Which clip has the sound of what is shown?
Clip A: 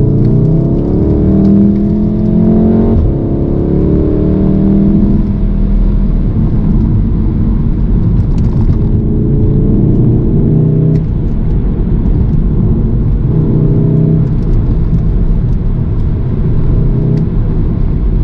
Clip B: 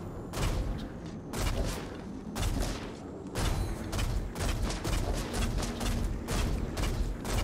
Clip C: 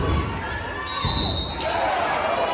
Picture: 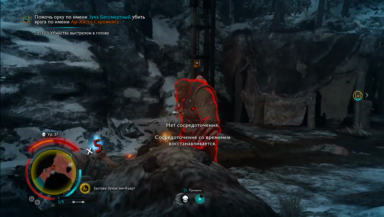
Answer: B